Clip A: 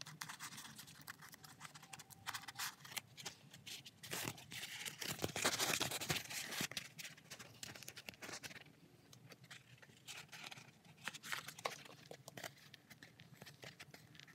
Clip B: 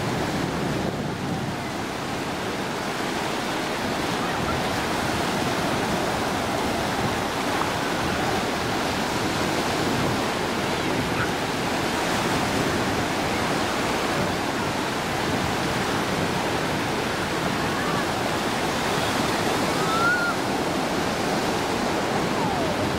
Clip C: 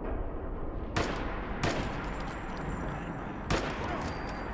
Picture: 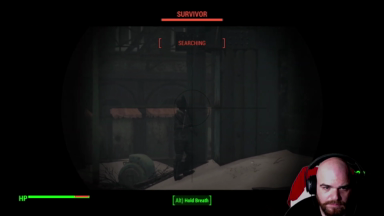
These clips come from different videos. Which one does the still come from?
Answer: C